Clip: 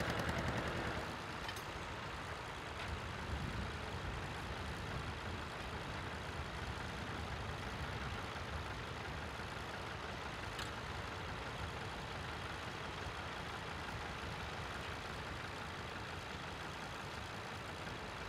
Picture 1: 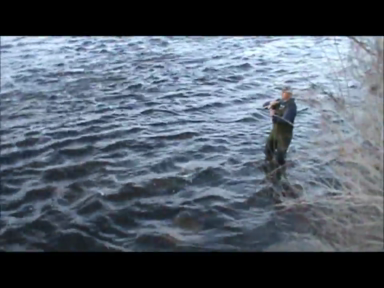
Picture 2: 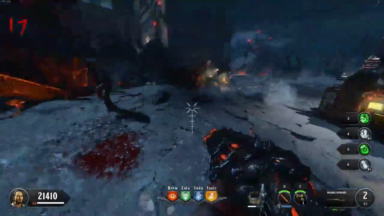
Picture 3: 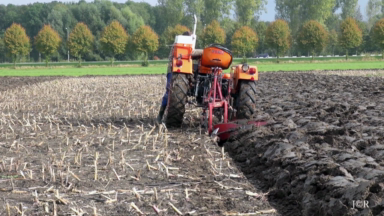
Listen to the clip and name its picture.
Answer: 3